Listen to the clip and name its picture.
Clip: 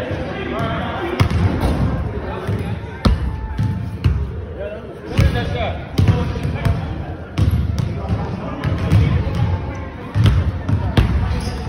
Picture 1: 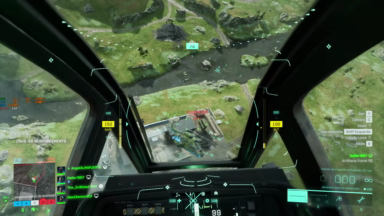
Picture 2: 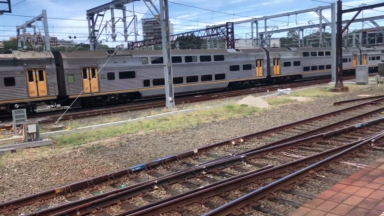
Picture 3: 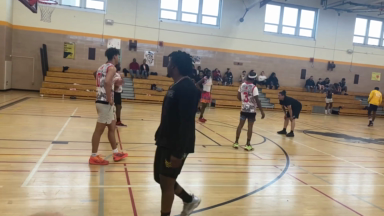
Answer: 3